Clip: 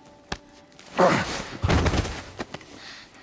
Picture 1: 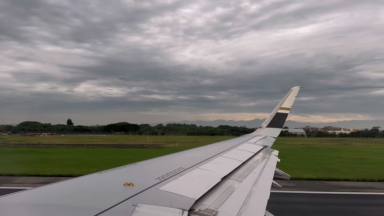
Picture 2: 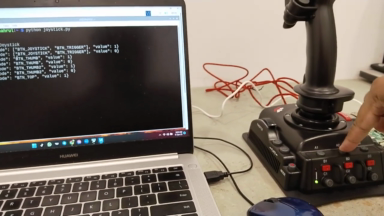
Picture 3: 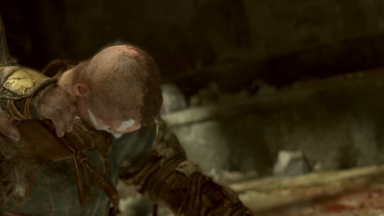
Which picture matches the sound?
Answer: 3